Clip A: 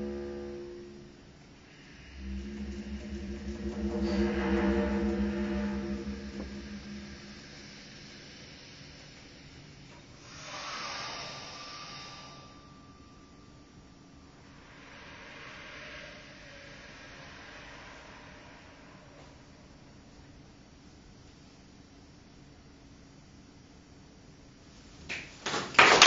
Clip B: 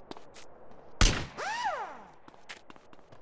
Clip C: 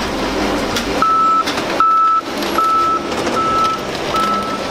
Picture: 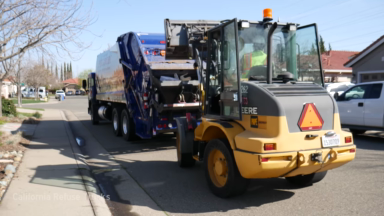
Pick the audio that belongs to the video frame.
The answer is C